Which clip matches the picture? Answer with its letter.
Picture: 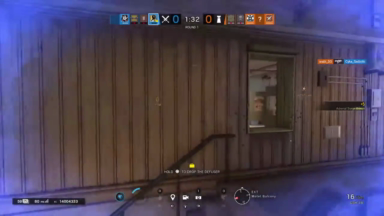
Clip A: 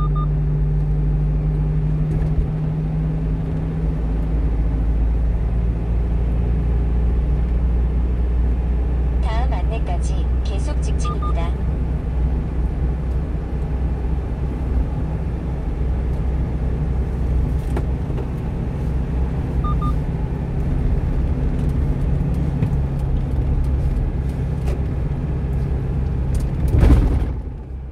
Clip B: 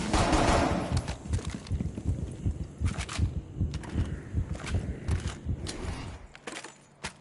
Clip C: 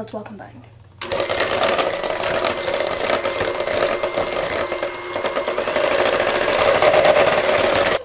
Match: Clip B